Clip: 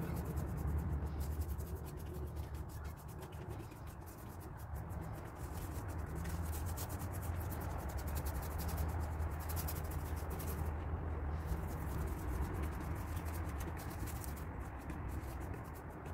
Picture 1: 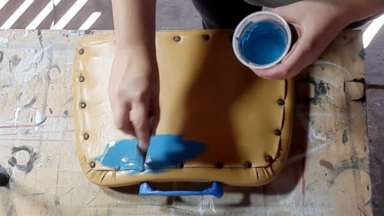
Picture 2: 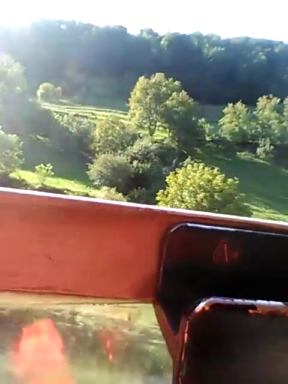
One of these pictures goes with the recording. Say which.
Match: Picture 1